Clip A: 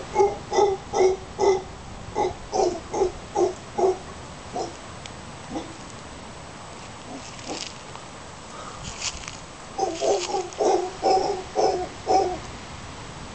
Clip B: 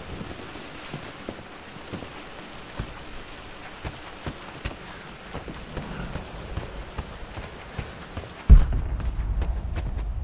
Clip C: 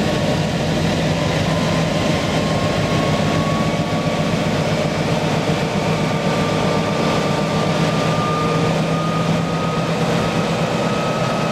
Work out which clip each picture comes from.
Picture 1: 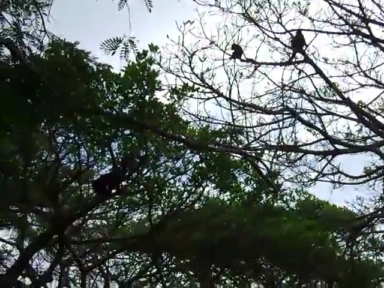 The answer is A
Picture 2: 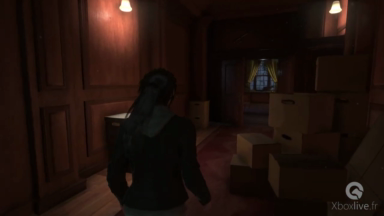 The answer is B